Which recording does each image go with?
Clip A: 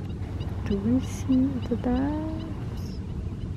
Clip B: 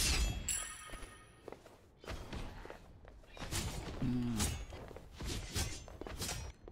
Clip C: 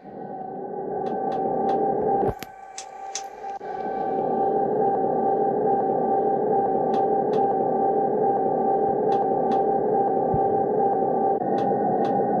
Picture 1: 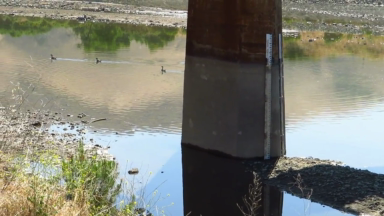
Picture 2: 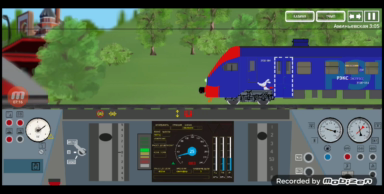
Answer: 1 A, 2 C